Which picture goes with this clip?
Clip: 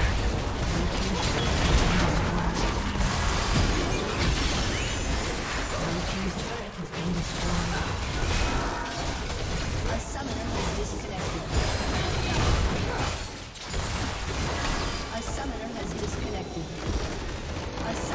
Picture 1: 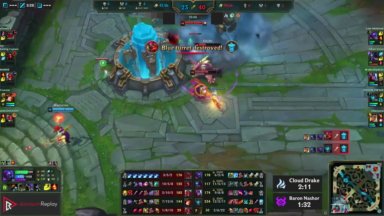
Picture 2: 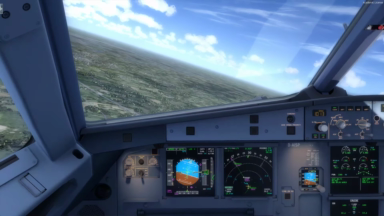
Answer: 1